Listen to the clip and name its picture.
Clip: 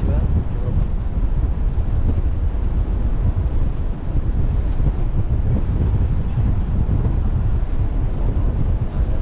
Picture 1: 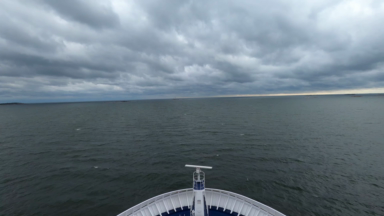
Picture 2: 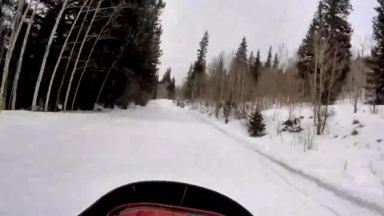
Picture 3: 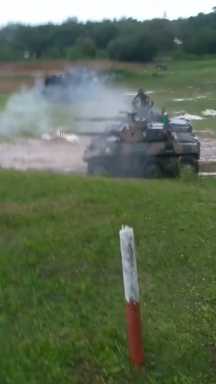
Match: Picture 1